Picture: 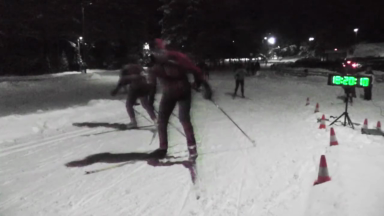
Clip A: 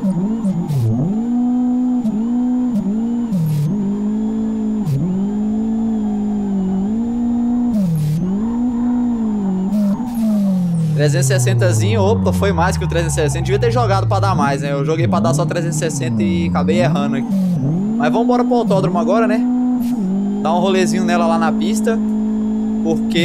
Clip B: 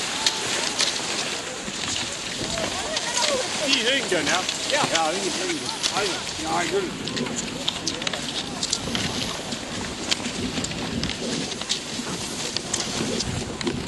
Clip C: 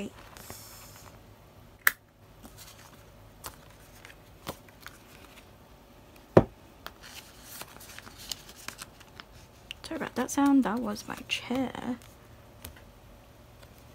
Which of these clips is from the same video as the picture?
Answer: B